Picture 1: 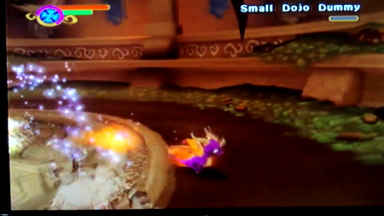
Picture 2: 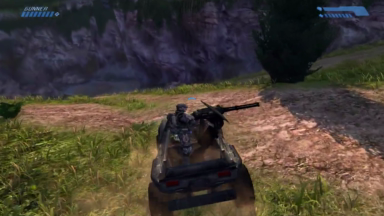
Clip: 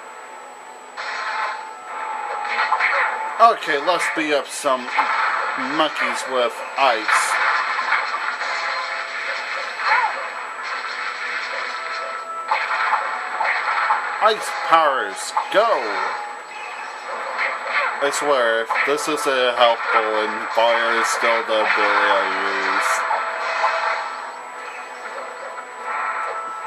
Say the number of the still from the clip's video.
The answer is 1